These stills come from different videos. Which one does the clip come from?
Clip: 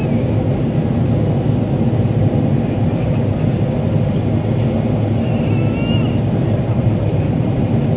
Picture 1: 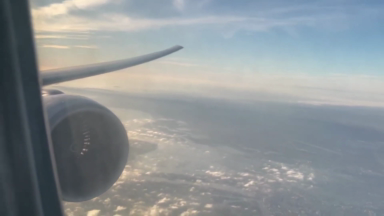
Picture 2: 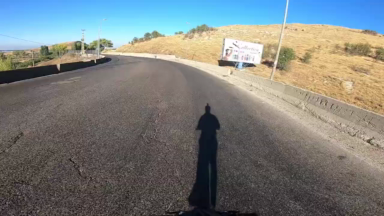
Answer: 1